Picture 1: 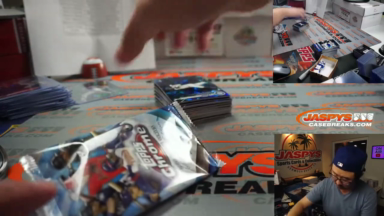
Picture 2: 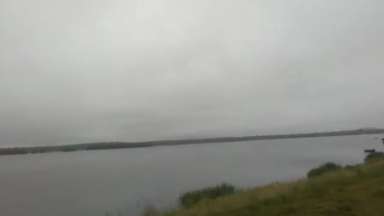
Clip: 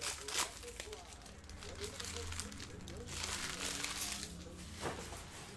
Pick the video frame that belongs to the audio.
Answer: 1